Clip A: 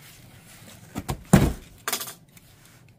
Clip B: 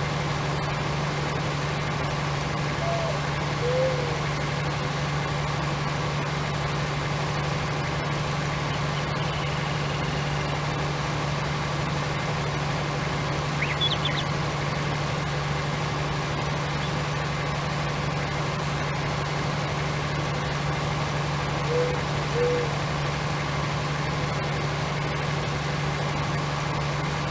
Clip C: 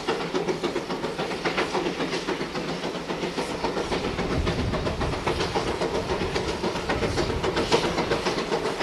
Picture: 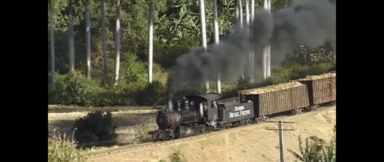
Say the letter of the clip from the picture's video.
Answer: C